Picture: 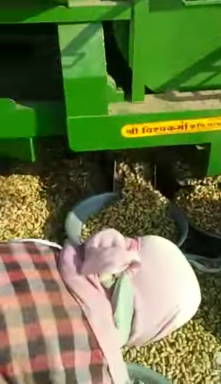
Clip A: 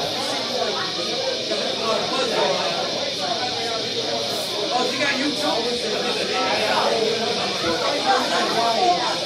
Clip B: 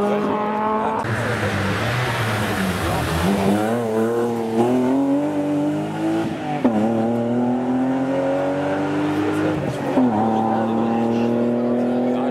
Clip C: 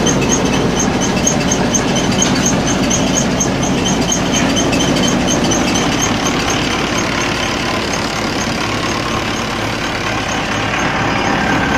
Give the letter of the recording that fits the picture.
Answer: C